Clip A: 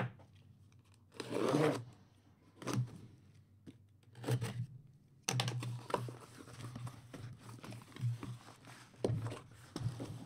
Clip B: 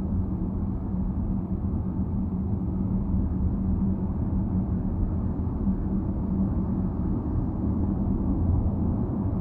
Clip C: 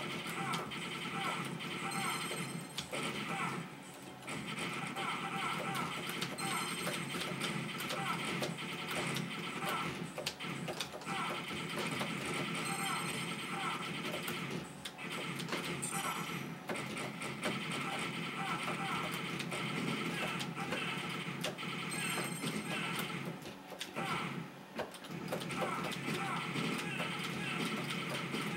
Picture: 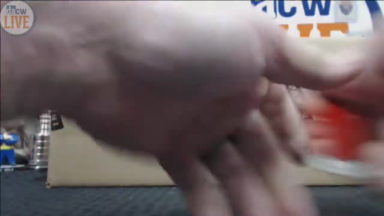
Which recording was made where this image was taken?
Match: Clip A